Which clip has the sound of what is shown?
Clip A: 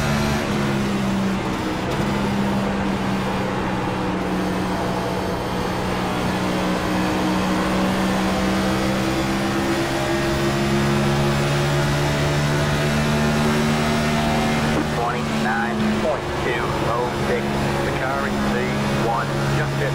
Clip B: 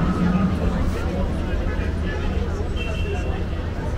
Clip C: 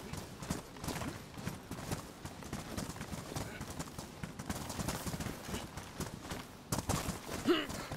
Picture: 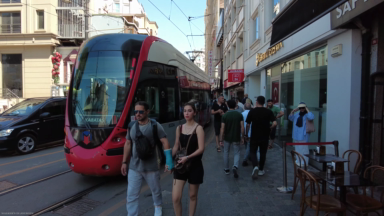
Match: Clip B